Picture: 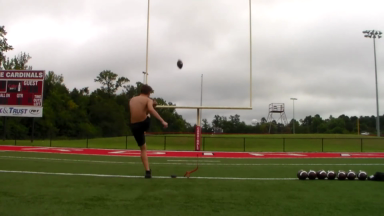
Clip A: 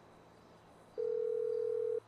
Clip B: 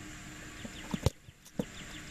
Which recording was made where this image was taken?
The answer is B